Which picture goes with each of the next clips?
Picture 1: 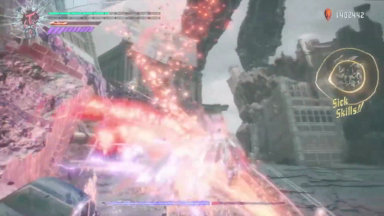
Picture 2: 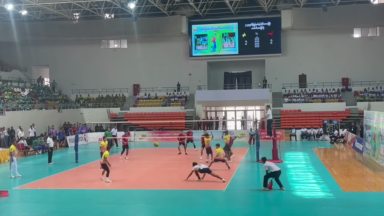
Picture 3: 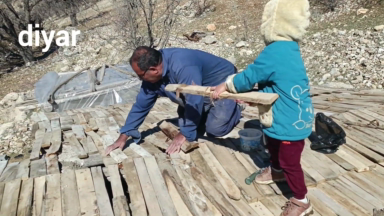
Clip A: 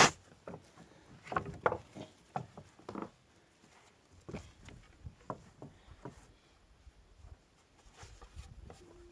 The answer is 3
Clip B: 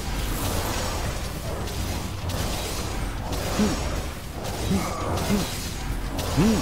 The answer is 1